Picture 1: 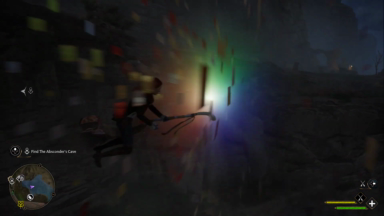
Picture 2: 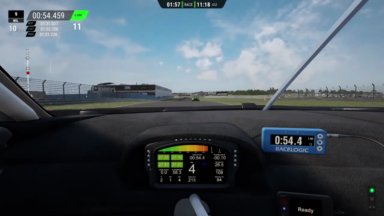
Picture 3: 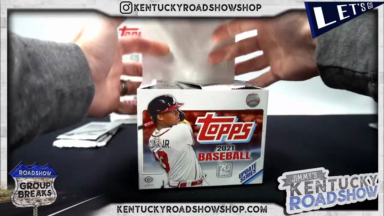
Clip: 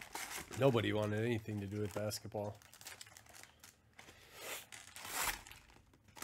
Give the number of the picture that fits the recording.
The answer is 3